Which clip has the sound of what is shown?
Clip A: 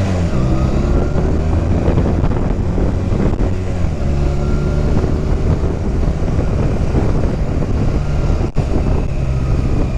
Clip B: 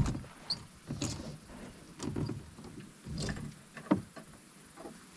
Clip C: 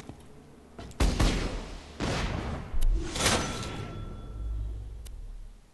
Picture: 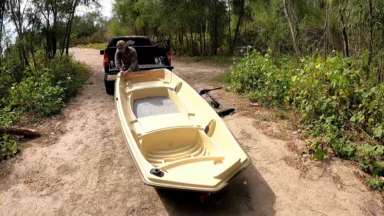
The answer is B